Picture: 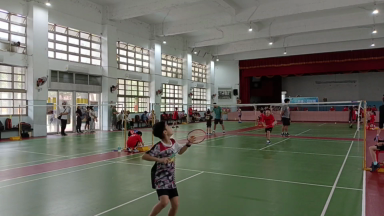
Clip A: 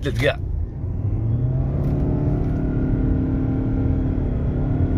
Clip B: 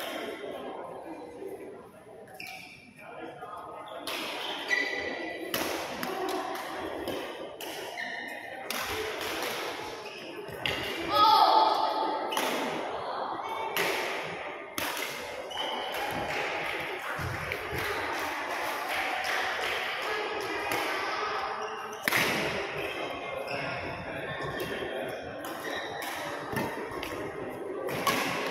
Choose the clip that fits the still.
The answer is B